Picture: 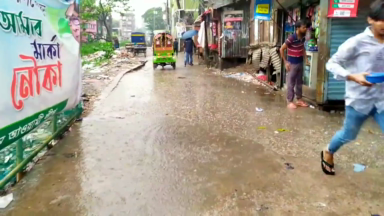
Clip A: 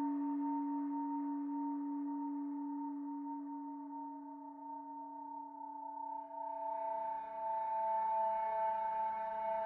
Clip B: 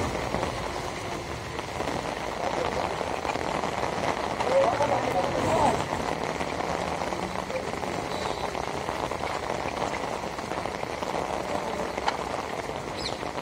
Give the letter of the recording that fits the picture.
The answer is B